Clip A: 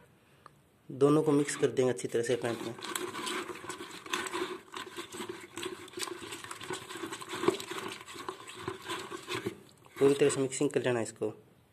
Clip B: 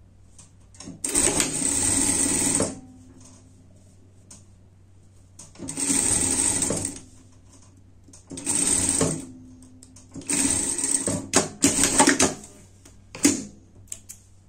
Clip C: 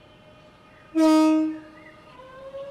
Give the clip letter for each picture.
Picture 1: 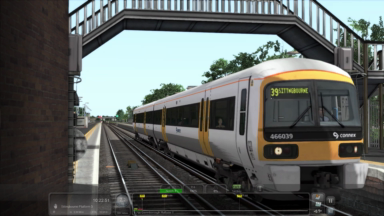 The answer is C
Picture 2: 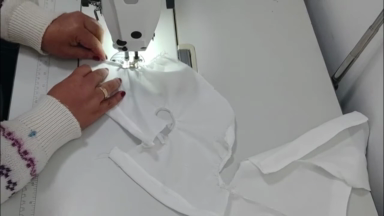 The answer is B